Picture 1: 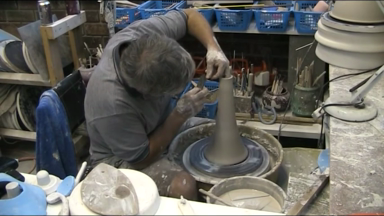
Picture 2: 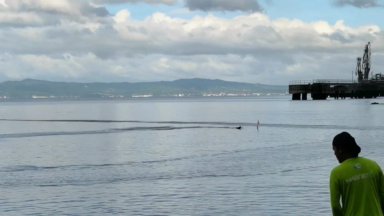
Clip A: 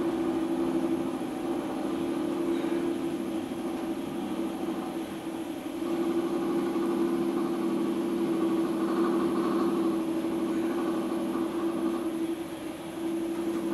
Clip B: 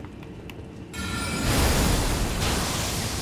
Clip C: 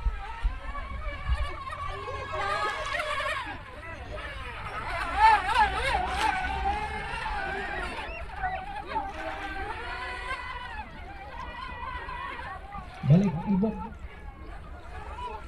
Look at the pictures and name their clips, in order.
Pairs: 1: A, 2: C